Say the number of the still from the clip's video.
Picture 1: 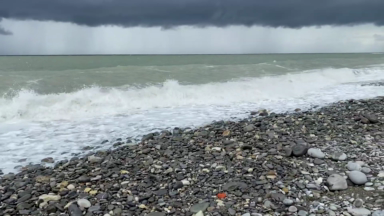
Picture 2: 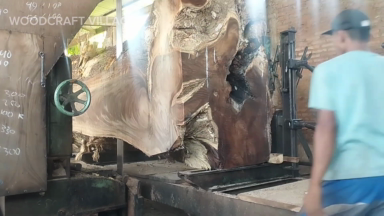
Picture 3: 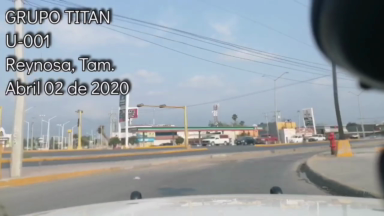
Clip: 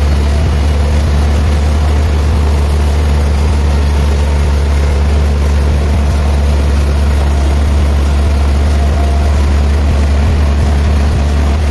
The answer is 2